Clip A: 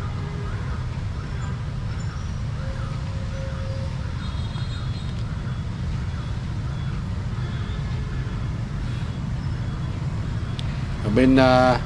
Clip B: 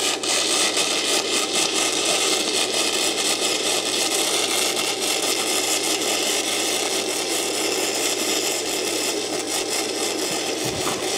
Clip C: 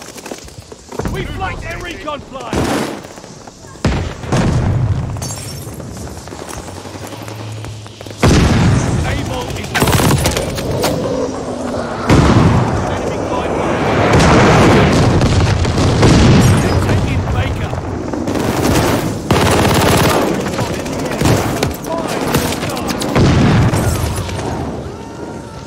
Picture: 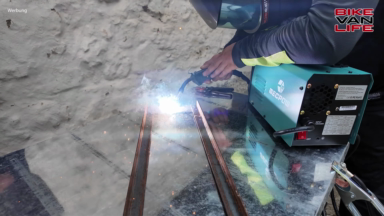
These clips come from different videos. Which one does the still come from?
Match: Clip B